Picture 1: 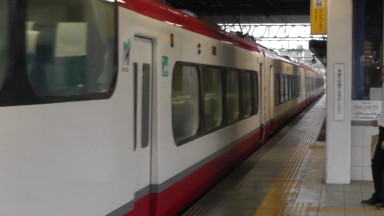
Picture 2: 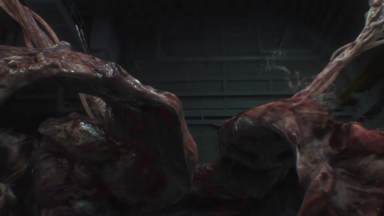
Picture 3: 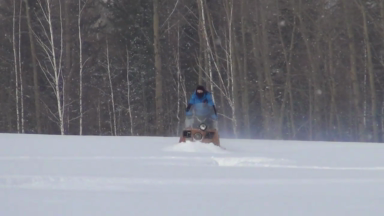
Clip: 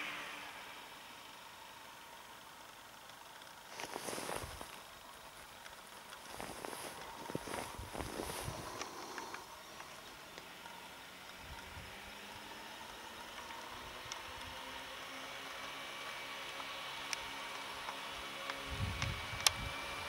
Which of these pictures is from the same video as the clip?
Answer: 3